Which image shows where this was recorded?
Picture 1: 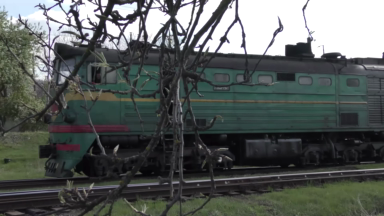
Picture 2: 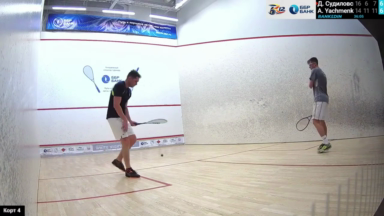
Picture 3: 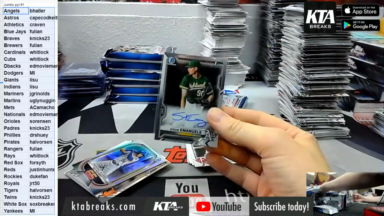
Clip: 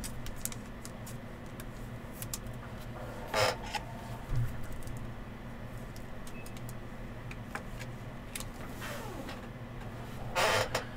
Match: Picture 3